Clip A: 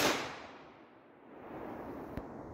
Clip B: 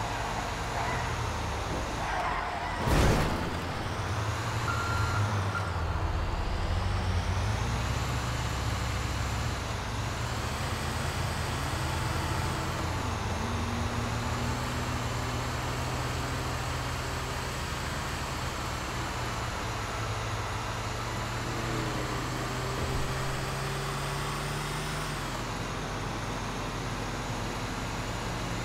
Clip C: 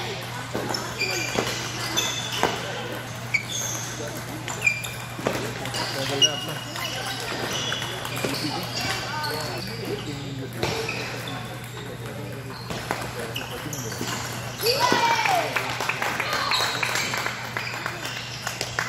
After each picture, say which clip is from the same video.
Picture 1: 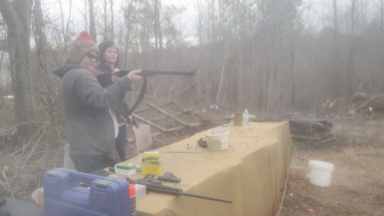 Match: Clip A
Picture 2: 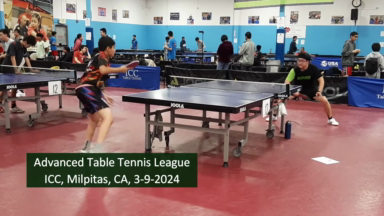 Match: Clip C